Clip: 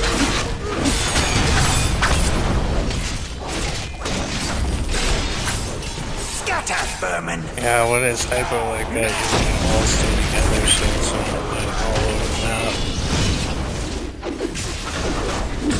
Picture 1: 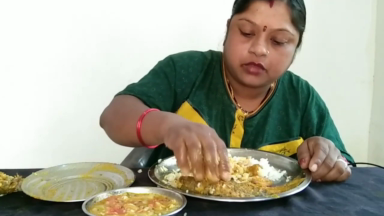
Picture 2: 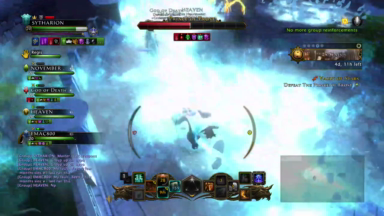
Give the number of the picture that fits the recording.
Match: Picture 2